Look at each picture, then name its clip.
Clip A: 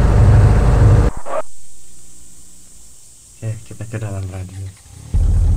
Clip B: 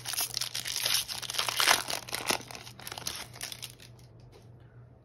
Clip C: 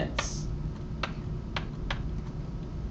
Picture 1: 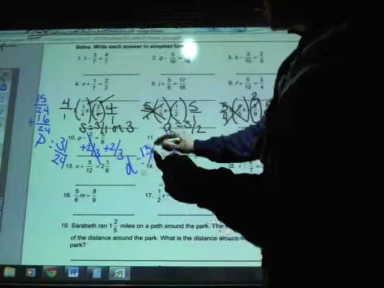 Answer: C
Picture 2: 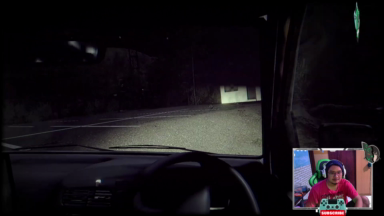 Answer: A